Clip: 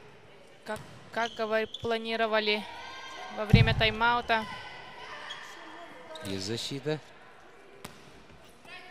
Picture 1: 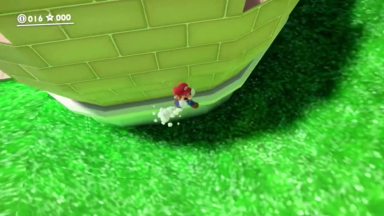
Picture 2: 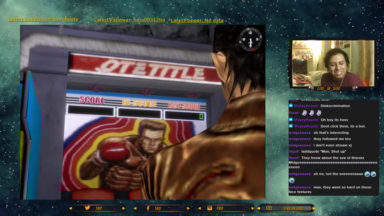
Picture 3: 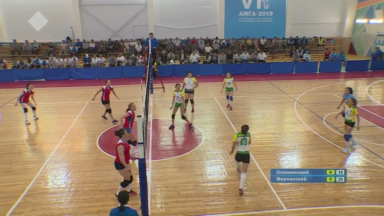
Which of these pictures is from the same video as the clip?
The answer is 3